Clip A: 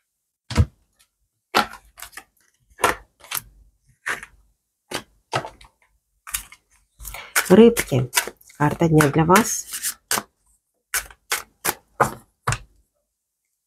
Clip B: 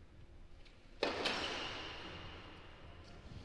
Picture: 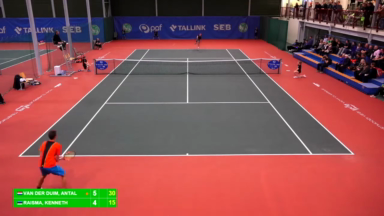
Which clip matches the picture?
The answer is B